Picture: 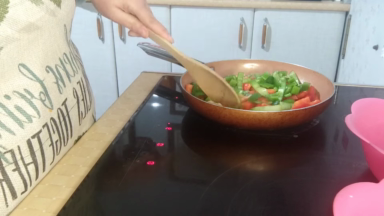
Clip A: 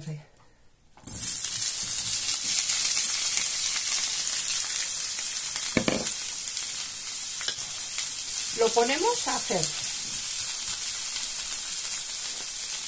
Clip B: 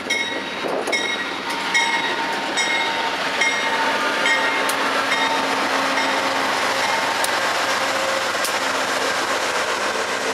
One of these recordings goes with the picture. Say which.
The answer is A